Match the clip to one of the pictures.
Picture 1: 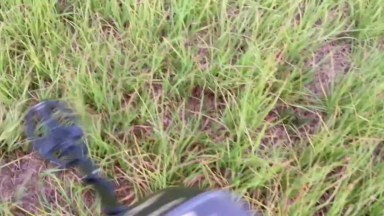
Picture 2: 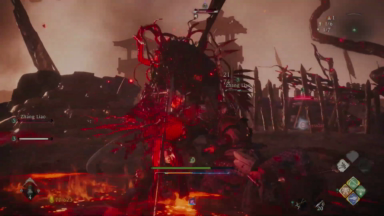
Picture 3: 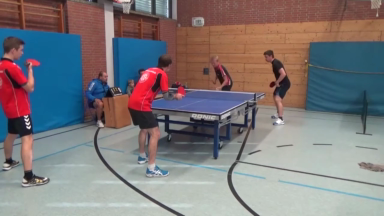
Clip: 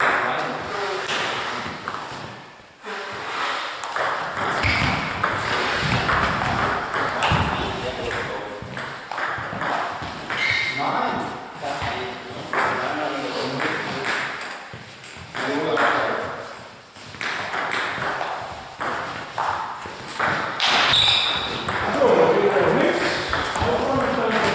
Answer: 3